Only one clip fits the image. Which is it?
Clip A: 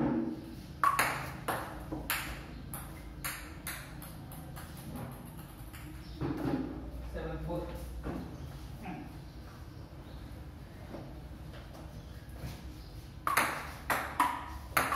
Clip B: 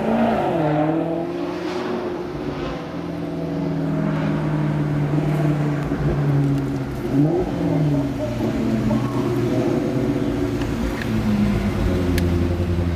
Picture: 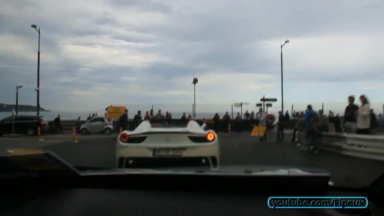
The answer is B